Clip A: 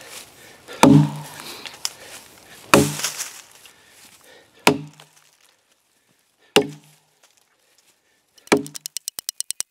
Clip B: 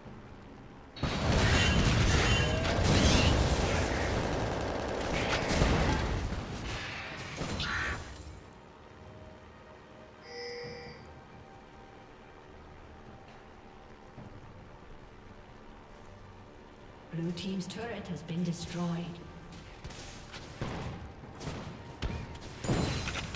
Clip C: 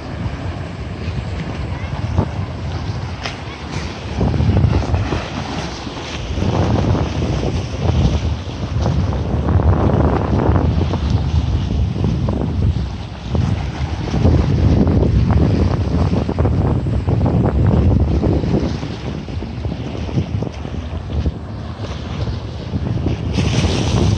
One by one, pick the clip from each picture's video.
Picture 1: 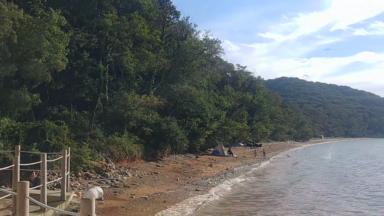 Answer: C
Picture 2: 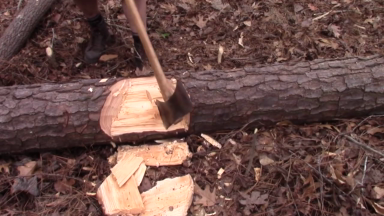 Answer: A